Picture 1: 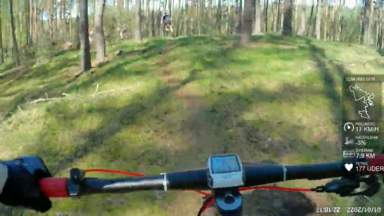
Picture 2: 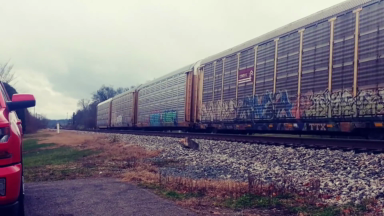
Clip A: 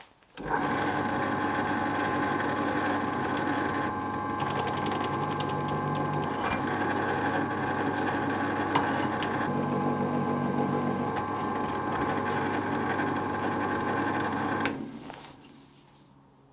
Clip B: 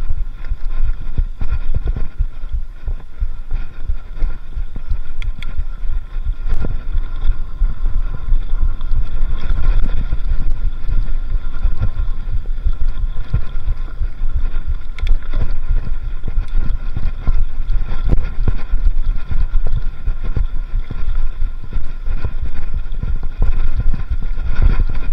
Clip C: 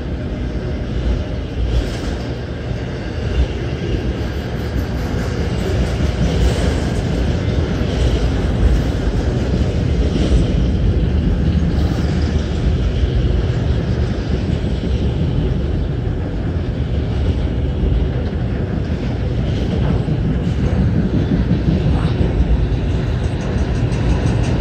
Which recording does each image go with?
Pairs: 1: B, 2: C